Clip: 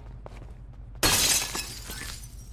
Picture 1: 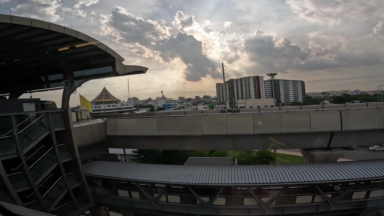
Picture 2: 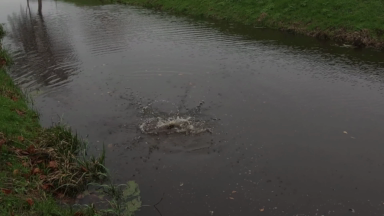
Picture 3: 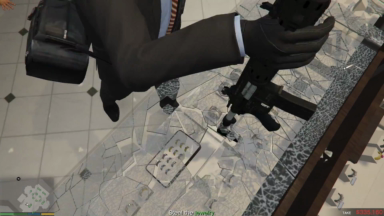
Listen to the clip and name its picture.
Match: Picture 3